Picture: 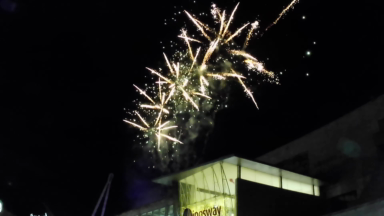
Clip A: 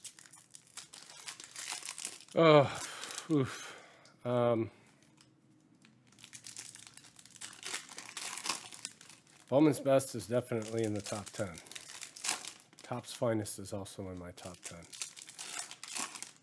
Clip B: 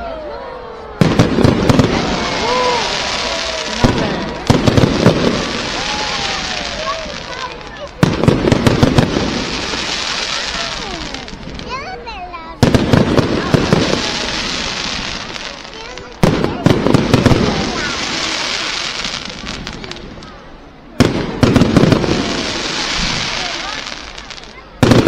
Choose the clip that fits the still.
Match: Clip B